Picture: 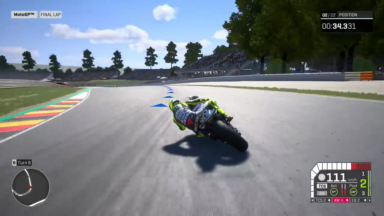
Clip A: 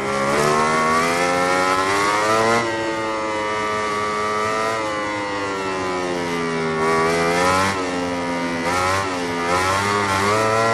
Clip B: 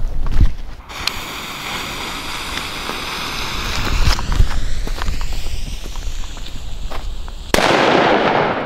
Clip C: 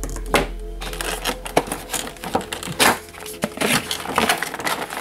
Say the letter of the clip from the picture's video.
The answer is A